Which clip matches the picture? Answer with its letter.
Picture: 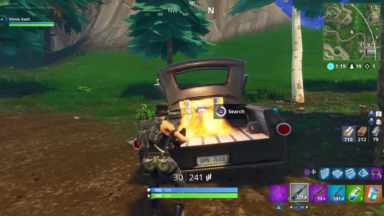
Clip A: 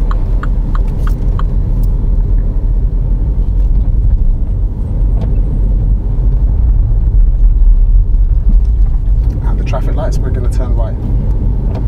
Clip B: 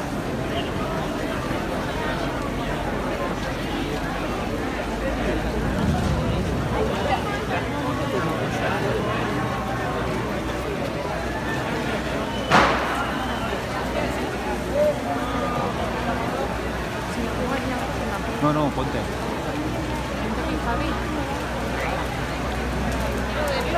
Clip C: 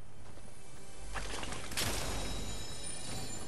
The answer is C